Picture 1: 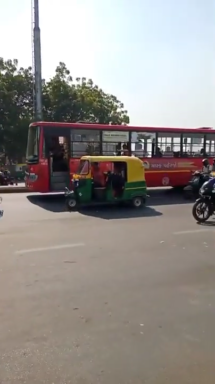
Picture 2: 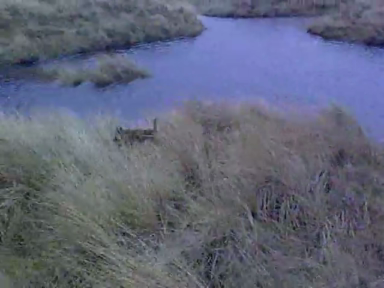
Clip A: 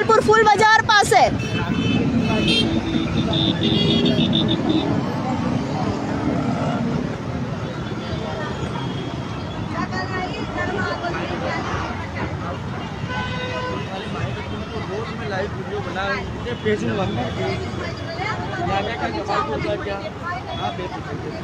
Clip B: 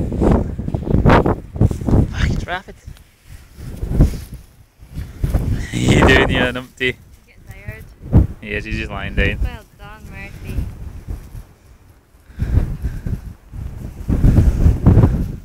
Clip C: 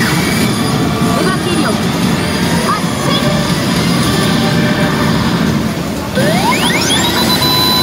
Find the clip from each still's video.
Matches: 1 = A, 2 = B